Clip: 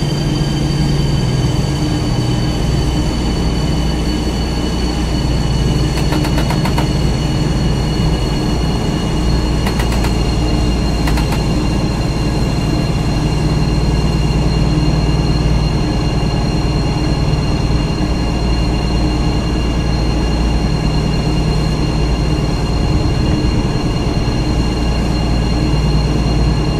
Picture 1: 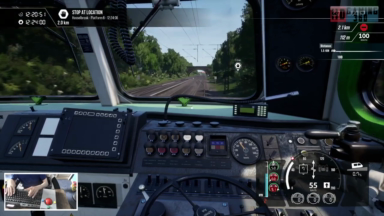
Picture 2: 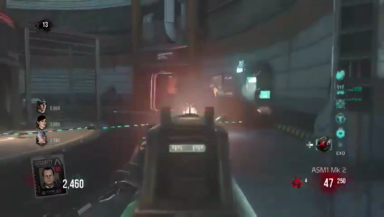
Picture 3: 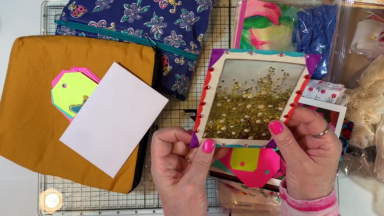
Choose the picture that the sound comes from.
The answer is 1